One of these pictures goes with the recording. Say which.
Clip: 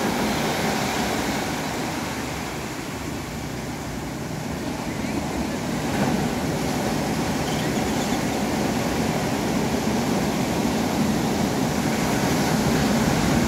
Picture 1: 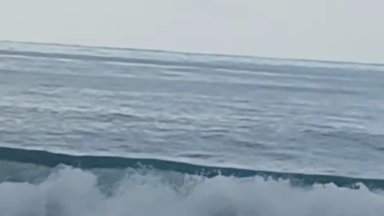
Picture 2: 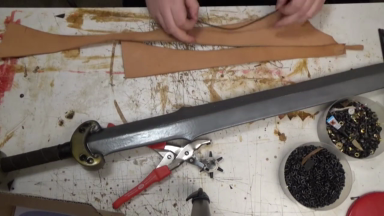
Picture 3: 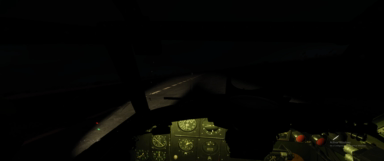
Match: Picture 1